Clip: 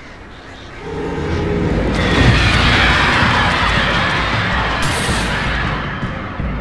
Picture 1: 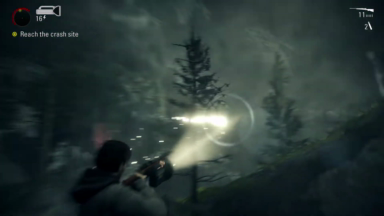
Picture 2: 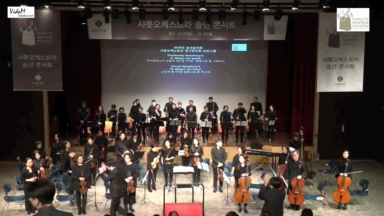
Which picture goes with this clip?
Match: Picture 1